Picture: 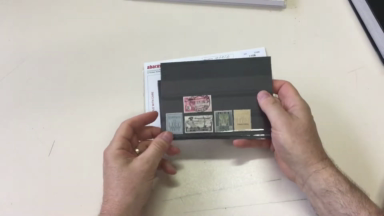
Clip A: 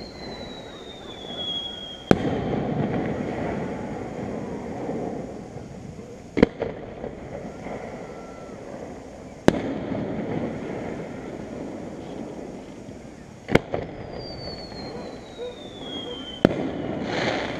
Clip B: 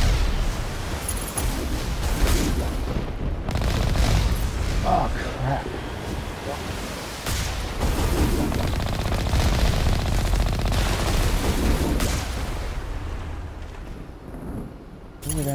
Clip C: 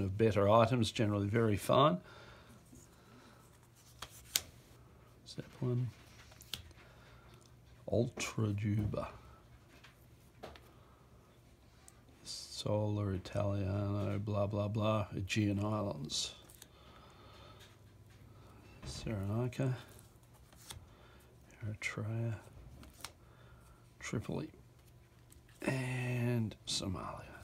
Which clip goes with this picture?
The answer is C